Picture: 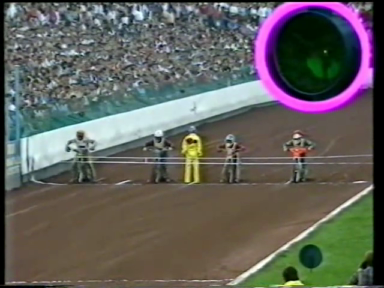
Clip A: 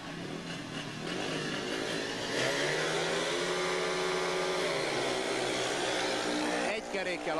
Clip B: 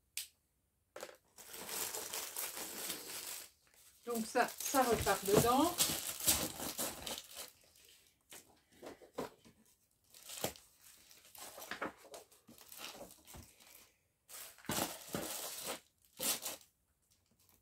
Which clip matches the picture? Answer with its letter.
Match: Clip A